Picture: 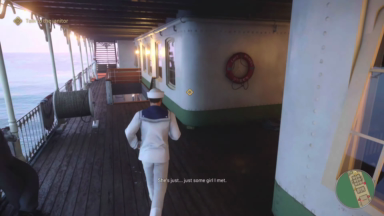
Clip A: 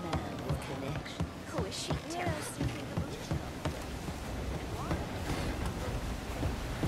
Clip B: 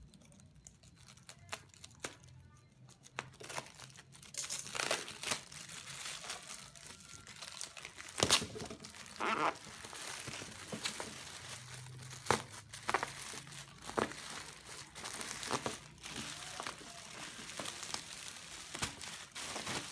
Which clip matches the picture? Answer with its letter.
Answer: A